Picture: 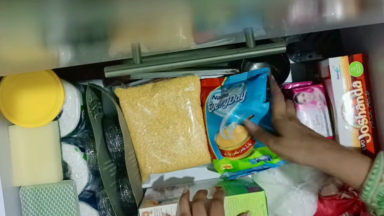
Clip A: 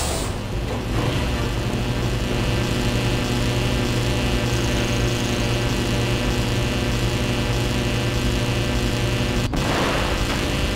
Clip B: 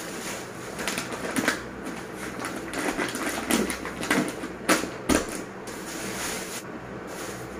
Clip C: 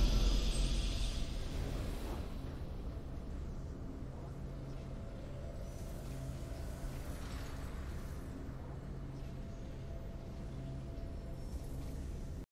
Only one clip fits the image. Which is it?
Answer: B